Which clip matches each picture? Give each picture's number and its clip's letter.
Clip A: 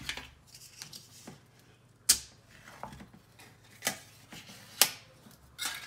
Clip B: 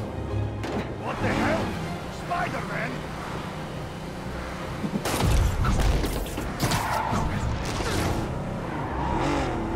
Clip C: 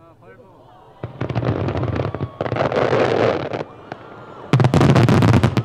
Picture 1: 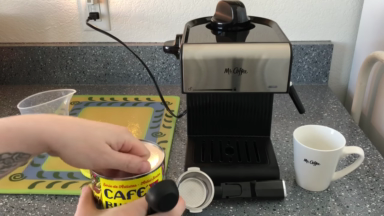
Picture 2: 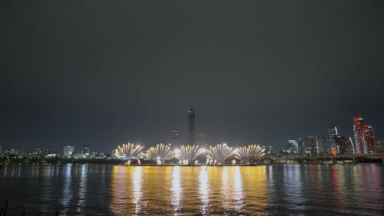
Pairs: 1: A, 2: C